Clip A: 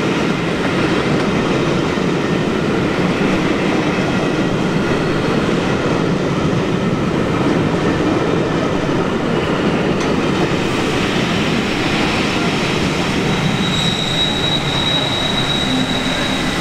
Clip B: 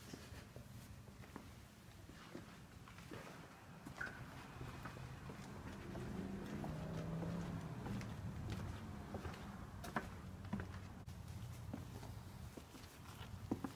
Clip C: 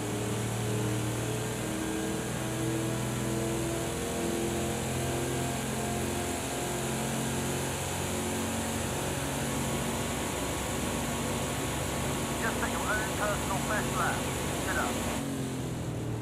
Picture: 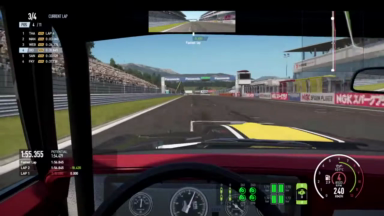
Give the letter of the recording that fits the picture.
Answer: C